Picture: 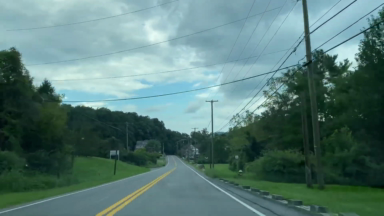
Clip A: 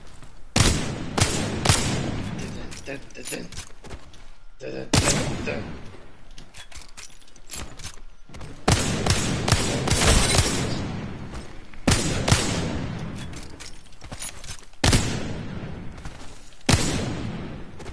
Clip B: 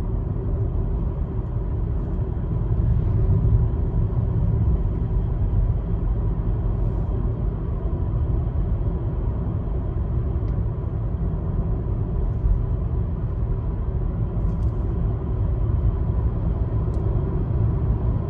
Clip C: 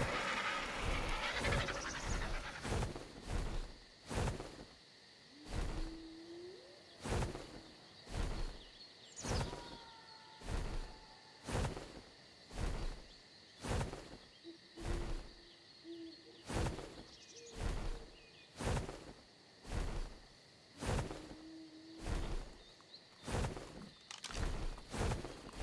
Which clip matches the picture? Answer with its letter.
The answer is B